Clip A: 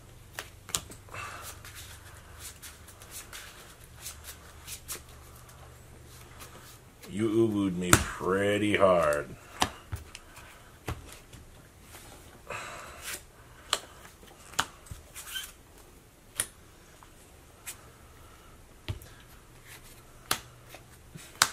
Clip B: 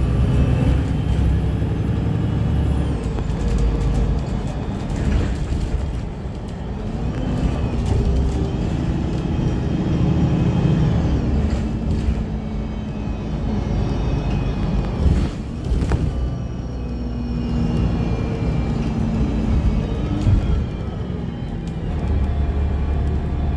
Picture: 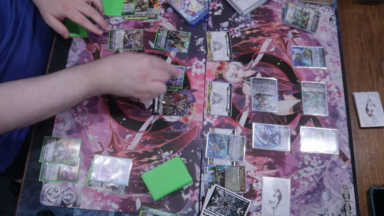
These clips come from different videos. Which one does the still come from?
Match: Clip A